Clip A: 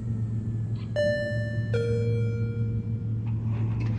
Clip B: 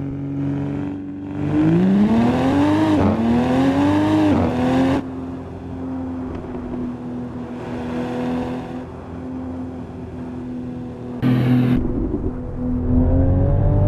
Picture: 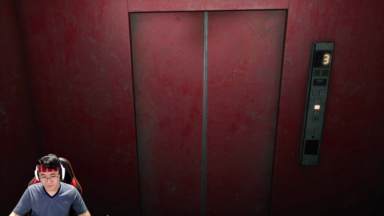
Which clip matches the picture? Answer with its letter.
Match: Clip A